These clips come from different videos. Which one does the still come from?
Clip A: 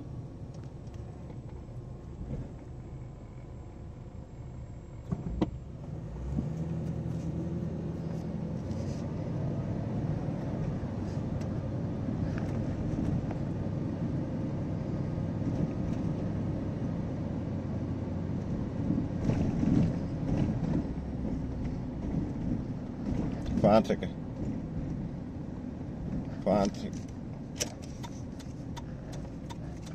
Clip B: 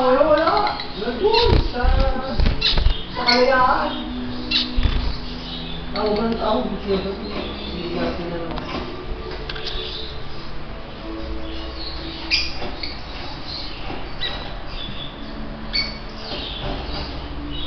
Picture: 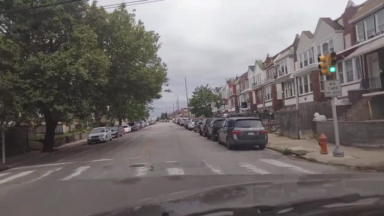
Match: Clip A